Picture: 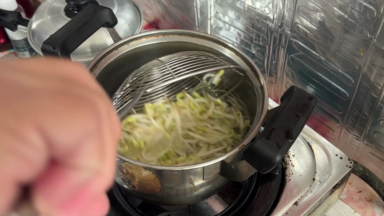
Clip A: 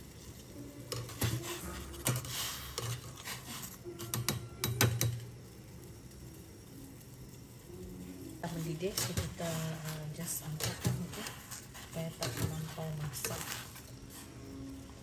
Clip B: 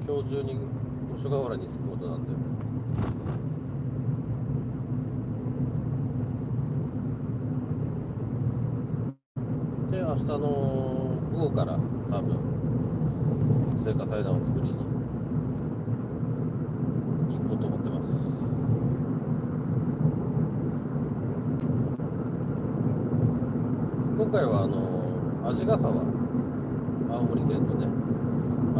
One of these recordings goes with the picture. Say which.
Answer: A